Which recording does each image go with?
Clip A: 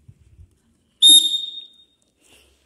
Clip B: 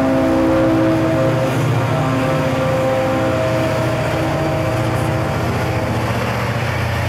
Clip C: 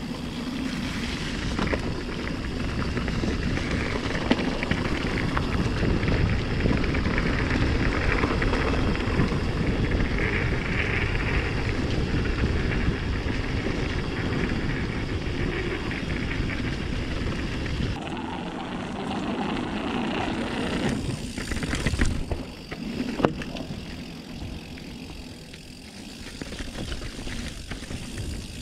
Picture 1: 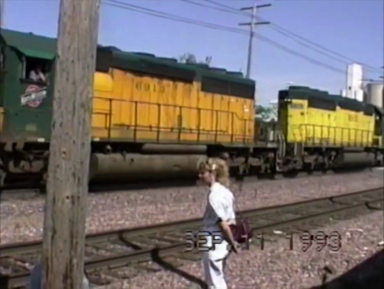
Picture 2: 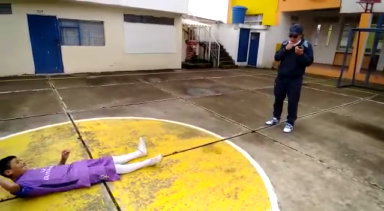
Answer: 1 B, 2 A